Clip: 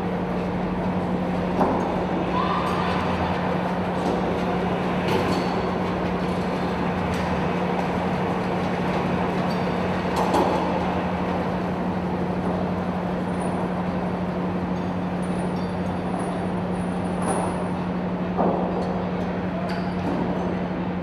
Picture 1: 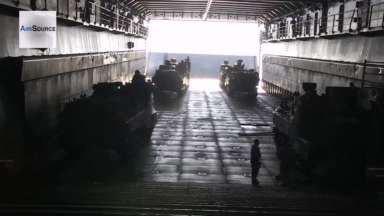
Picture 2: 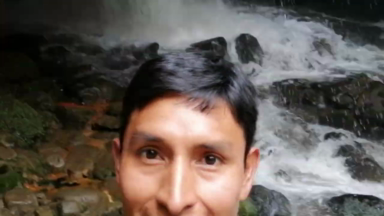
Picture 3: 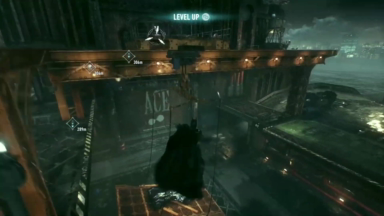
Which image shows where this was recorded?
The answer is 1